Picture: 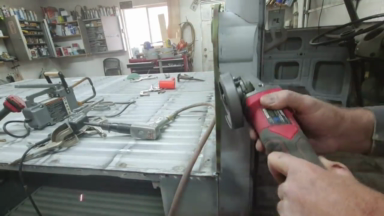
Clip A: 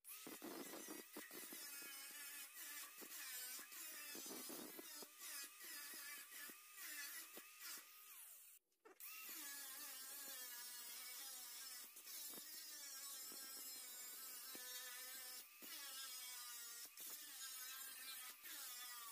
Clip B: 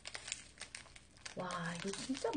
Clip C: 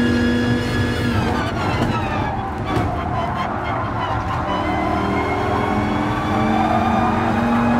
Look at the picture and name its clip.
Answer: A